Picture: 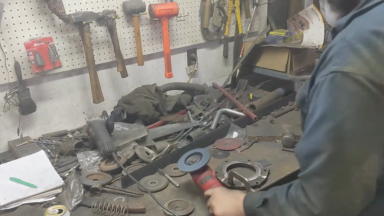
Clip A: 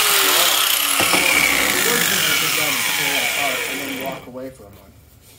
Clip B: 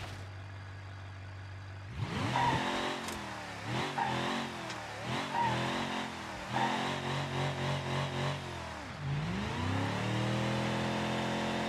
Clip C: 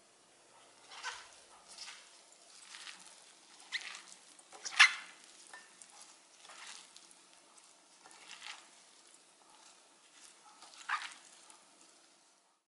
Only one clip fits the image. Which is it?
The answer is A